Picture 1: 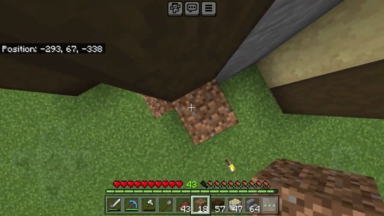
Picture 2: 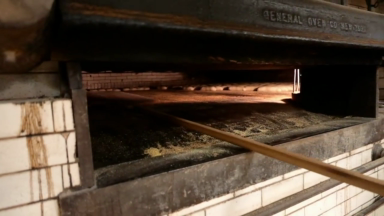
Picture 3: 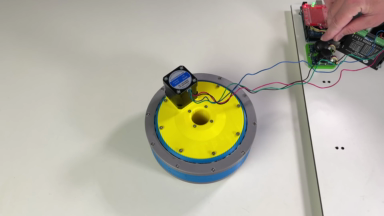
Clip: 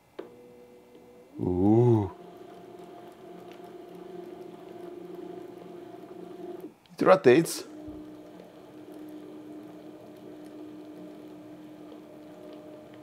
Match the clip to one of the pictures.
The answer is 3